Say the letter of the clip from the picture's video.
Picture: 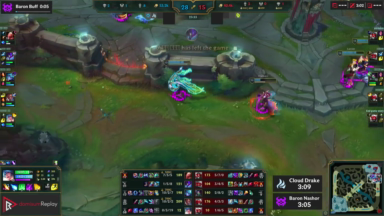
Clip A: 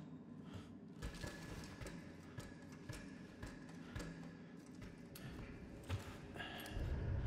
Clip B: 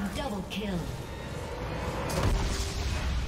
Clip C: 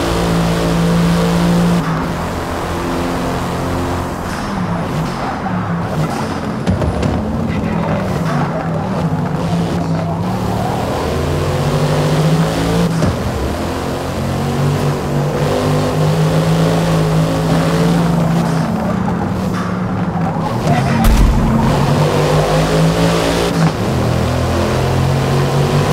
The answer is B